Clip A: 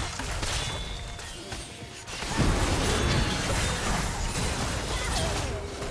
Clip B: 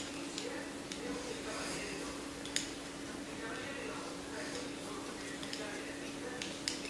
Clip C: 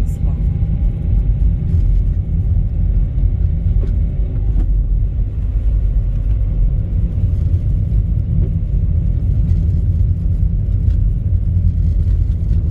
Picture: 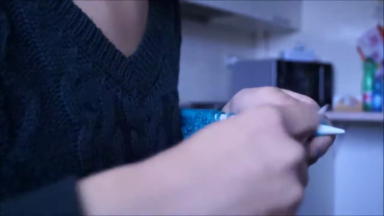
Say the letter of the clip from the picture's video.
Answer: B